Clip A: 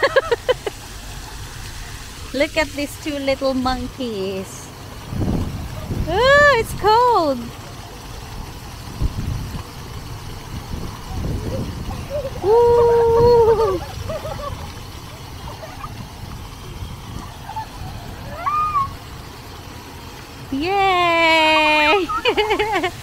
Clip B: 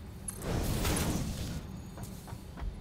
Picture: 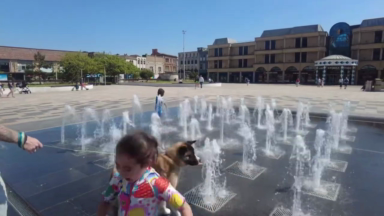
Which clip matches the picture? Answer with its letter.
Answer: A